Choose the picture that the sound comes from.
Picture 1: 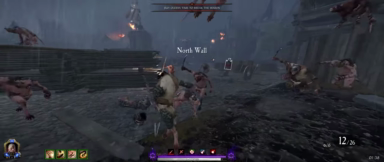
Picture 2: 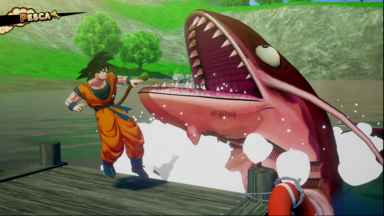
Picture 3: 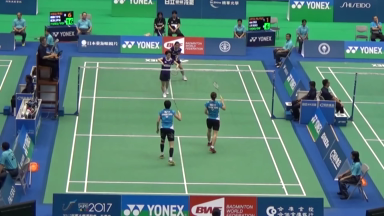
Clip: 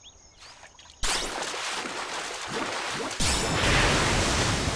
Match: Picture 2